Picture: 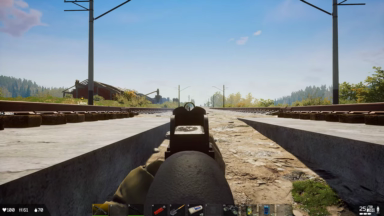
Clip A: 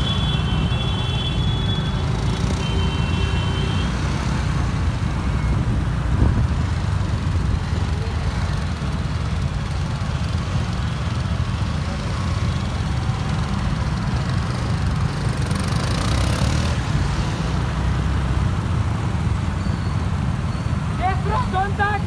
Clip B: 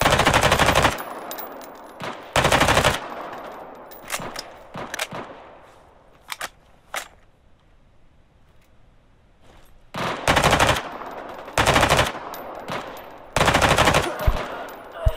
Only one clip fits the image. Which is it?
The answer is B